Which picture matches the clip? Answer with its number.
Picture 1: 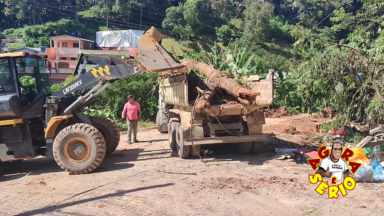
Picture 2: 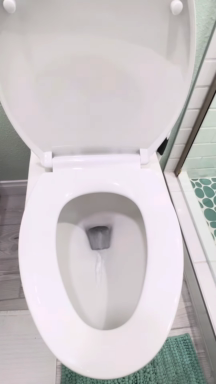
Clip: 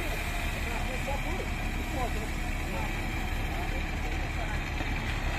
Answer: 1